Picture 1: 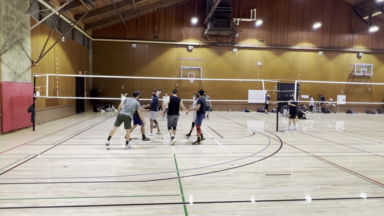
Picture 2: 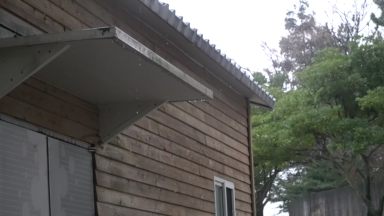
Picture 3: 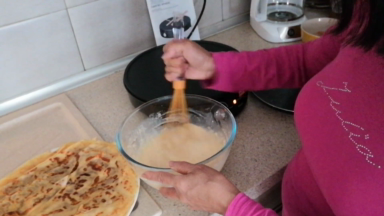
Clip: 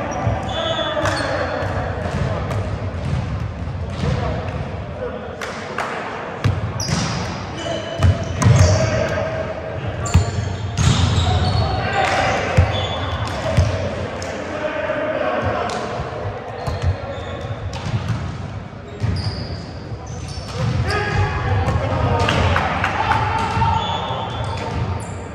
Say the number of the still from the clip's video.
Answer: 1